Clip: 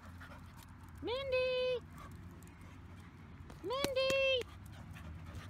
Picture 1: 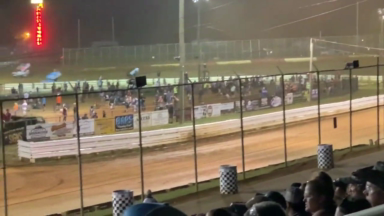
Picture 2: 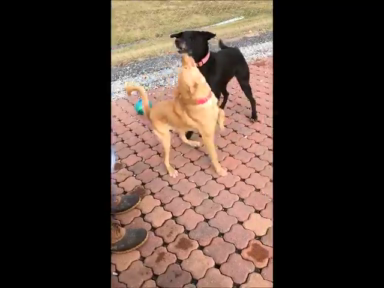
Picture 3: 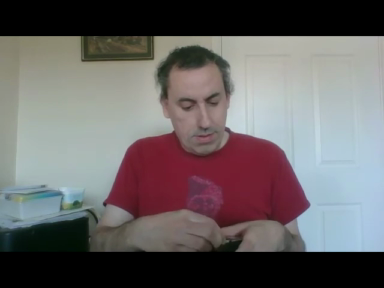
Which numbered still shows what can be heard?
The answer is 2